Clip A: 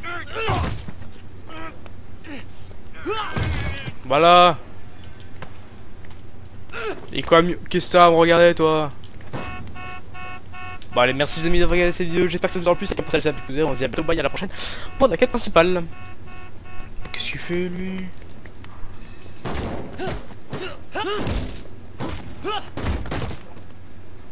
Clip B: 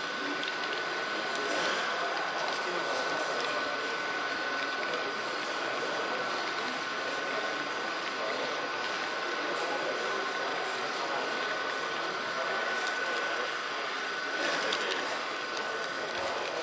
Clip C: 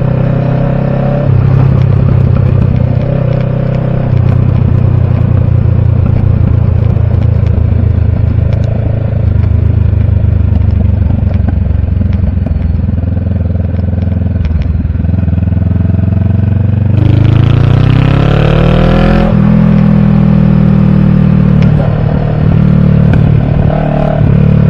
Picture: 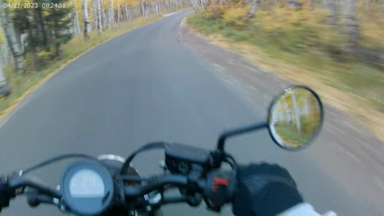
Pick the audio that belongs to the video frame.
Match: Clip C